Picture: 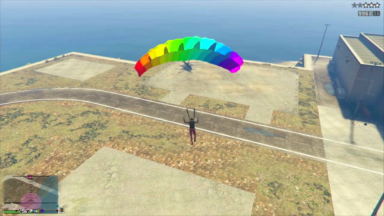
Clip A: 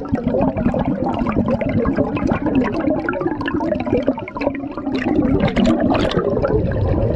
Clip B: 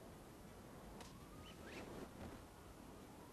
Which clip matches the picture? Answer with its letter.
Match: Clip B